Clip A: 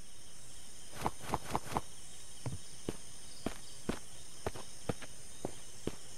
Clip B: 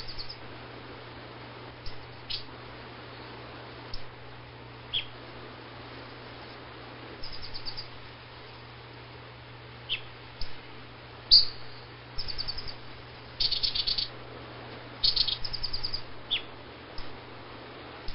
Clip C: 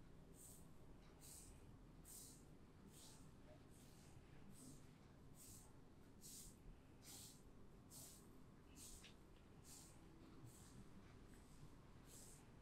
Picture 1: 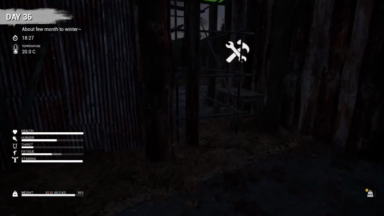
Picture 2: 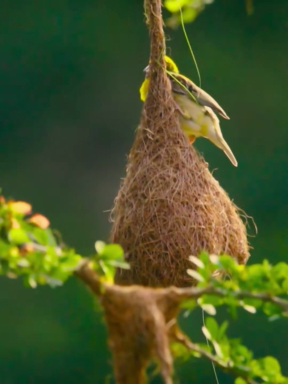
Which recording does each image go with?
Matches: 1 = A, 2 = B